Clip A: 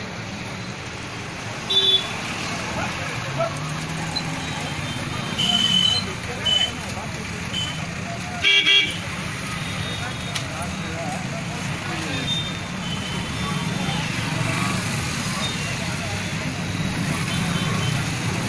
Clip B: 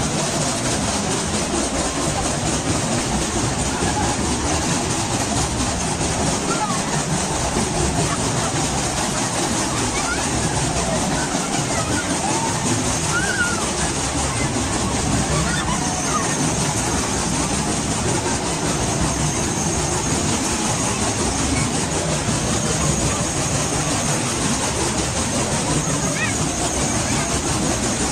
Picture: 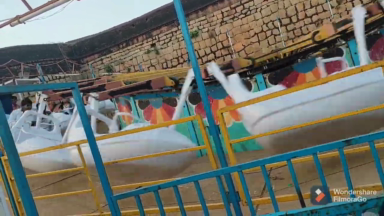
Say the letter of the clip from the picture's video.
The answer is B